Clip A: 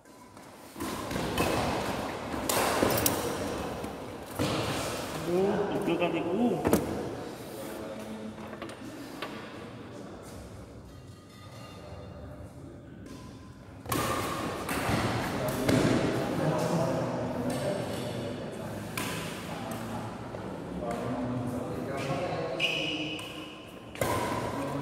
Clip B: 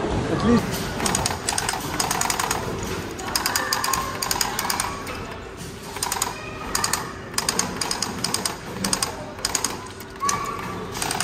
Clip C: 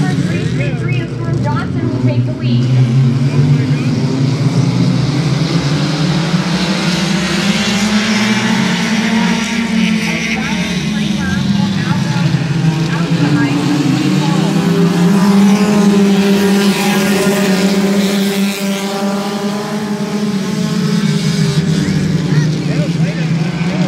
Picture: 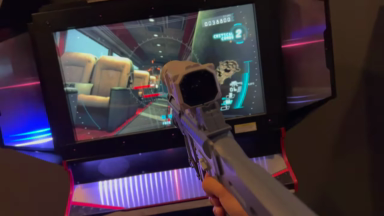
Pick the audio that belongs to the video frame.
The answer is B